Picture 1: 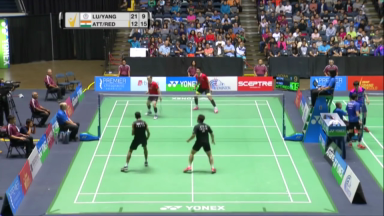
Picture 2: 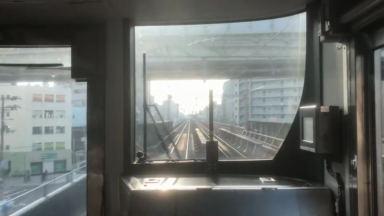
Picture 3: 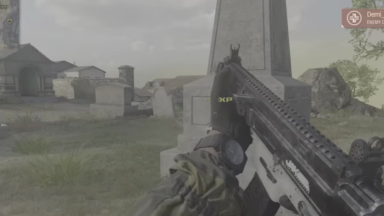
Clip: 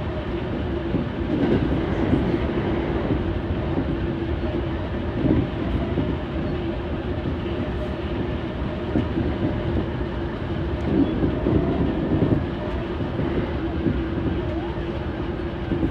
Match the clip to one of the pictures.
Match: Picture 2